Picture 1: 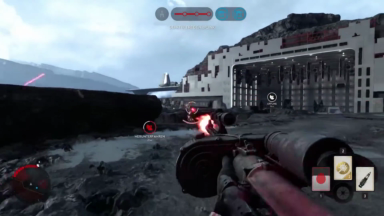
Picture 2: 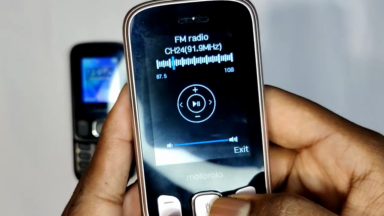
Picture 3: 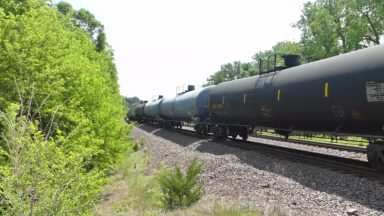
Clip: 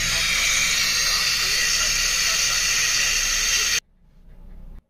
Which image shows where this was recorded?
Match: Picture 2